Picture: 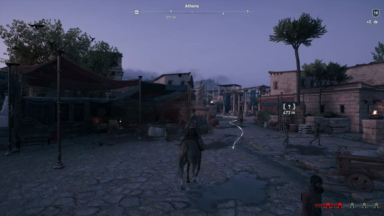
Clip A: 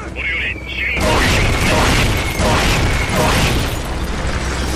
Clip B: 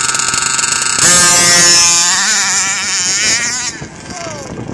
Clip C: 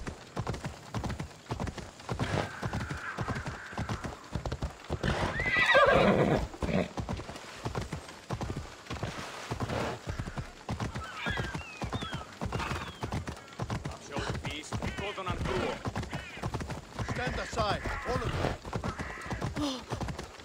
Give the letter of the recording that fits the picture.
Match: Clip C